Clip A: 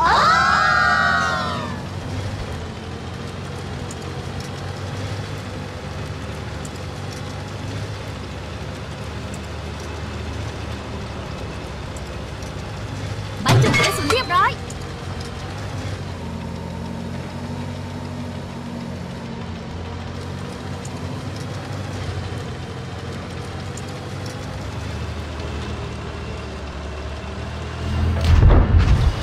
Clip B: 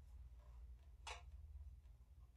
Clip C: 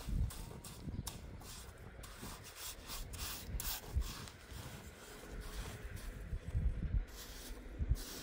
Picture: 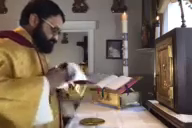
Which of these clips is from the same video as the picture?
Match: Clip B